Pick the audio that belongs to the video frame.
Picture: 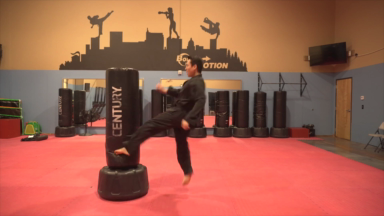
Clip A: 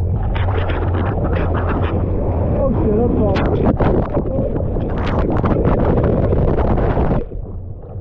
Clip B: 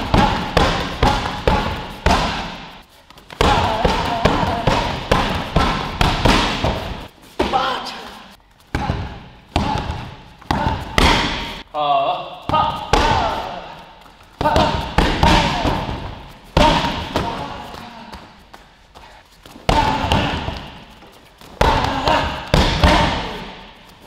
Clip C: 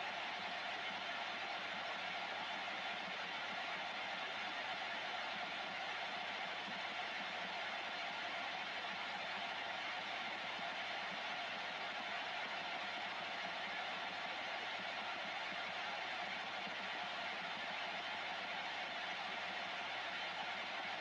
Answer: B